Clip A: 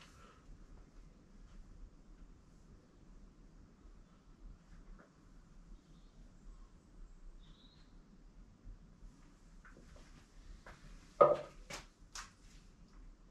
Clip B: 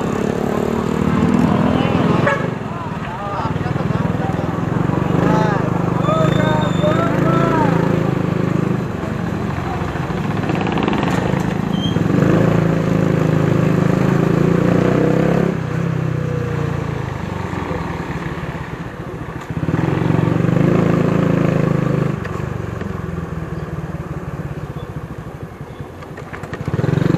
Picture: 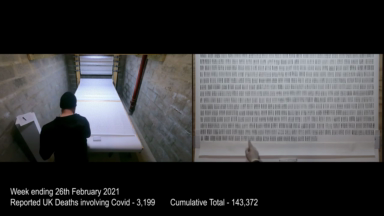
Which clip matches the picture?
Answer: A